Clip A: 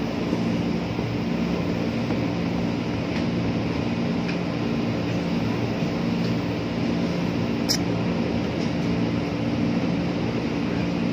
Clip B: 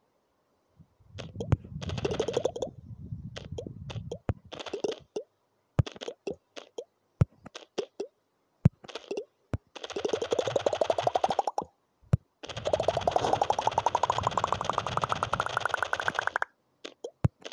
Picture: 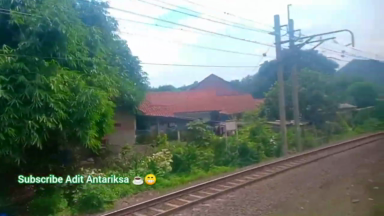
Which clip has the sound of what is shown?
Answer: A